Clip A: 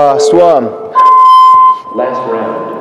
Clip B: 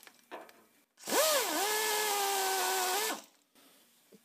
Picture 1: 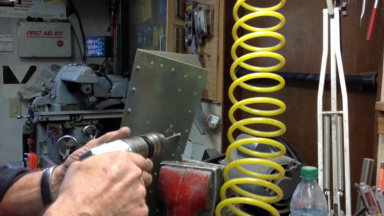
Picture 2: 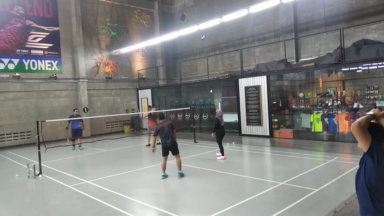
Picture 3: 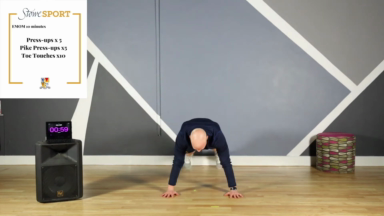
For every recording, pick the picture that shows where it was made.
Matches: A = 3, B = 1